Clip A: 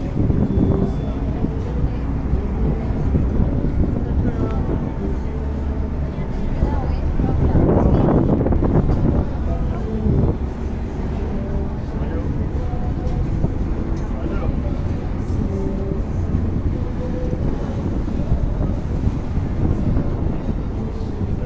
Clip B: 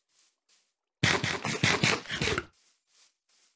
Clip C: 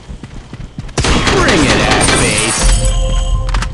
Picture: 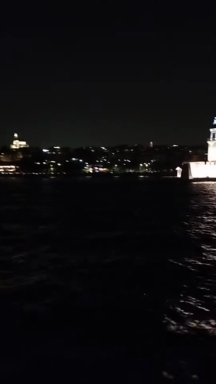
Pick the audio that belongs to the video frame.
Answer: A